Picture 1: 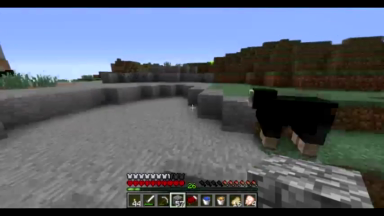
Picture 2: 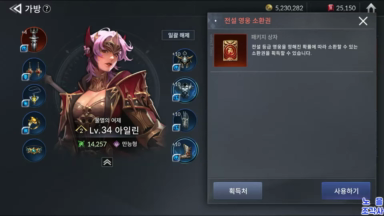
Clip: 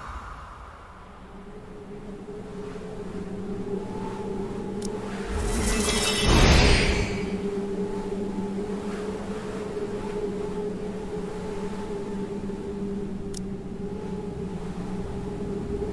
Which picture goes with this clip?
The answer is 2